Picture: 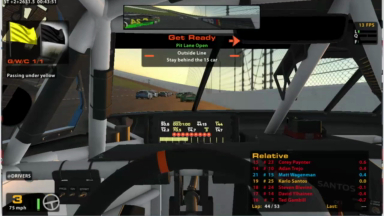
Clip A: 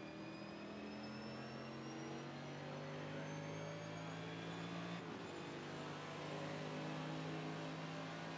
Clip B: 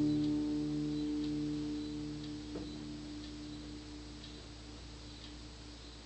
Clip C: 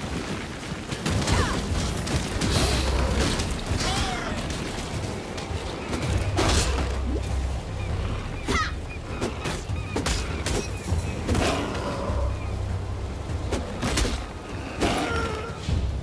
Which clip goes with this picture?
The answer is A